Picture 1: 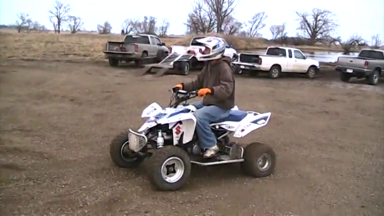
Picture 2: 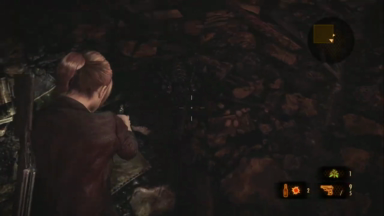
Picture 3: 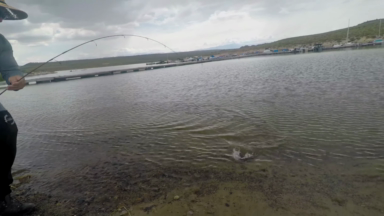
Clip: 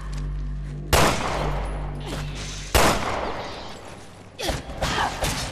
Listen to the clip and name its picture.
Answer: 2